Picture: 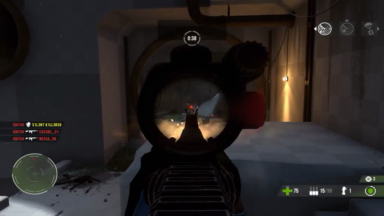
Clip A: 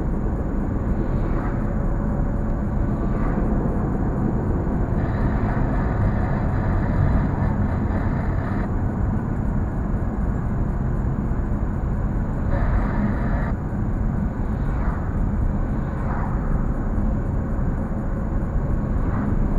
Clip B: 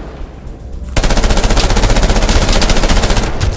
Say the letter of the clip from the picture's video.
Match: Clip B